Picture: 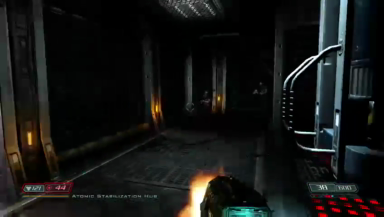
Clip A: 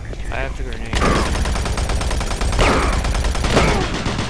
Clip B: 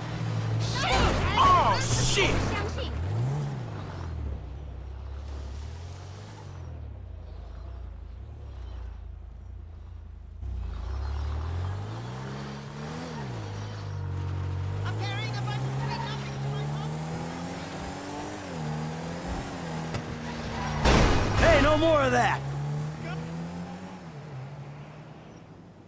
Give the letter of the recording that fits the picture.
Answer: A